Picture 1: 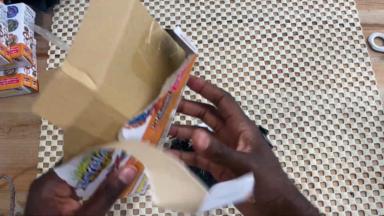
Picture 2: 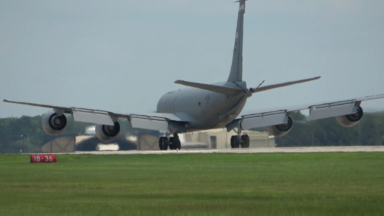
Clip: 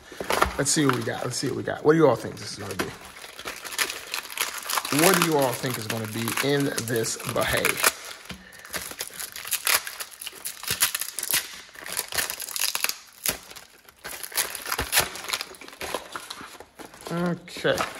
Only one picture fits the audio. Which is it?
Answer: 1